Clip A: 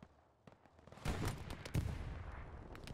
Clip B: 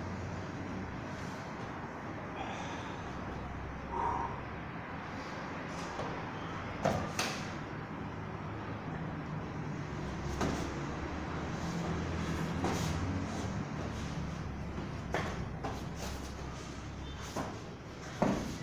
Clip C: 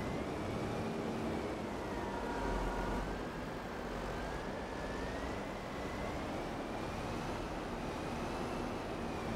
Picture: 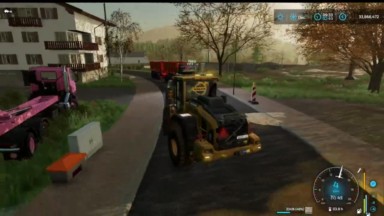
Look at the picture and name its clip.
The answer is C